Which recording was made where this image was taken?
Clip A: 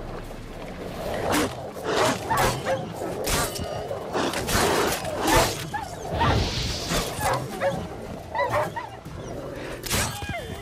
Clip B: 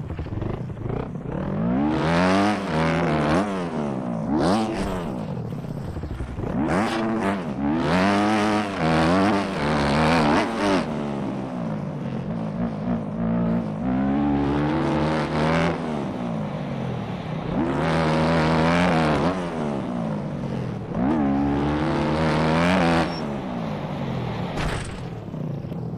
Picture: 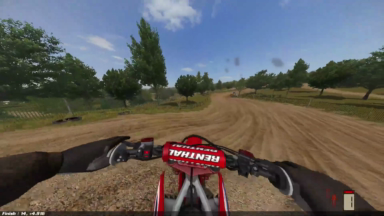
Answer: B